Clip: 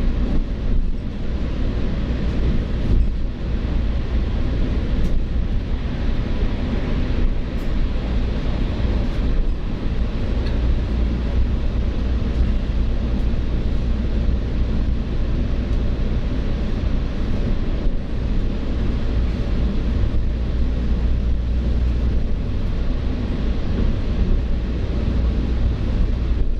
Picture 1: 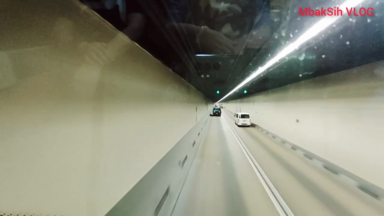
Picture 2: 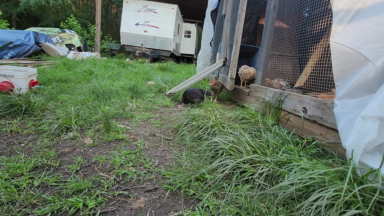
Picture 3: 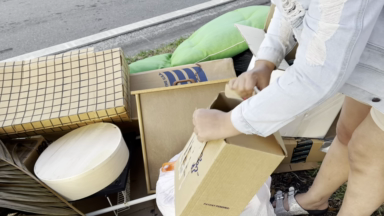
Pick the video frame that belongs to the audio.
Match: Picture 1